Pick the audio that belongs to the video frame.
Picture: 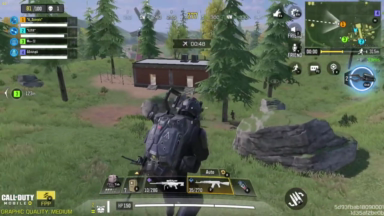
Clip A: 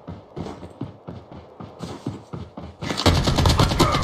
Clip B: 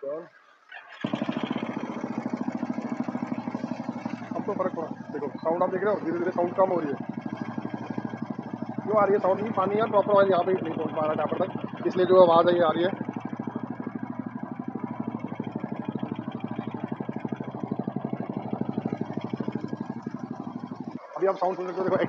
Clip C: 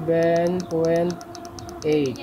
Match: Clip A